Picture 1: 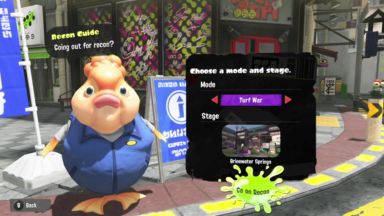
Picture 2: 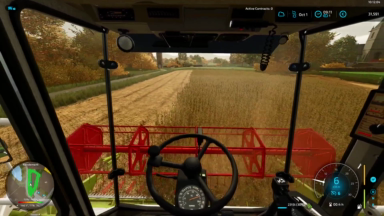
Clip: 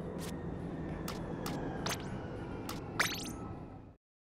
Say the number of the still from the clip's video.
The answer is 1